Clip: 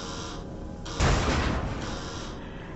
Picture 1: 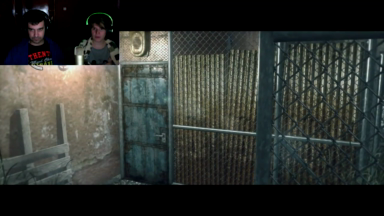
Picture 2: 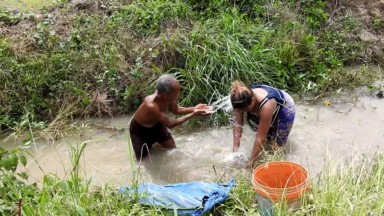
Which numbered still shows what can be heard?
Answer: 1